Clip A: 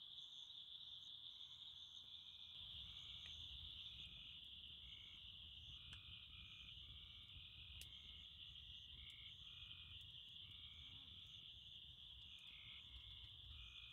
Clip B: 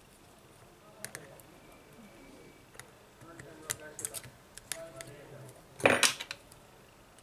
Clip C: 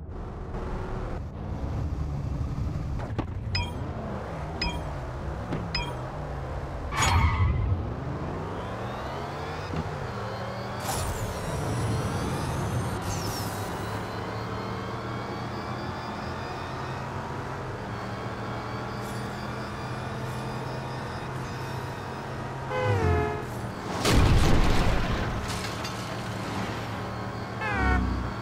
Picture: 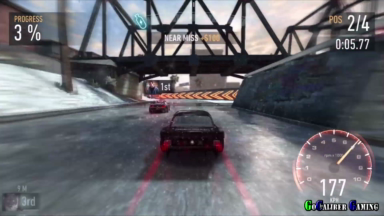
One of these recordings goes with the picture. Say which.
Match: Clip C